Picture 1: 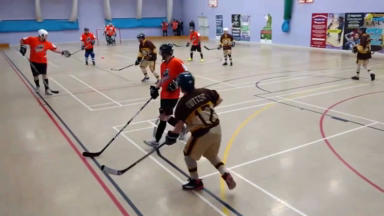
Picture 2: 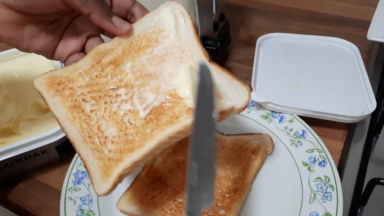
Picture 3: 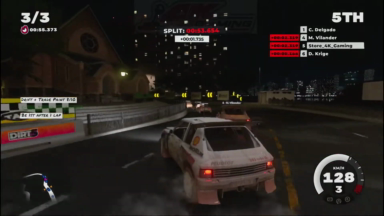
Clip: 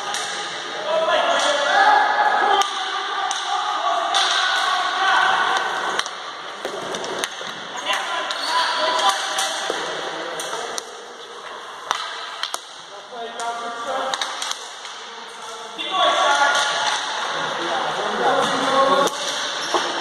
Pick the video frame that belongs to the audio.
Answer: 1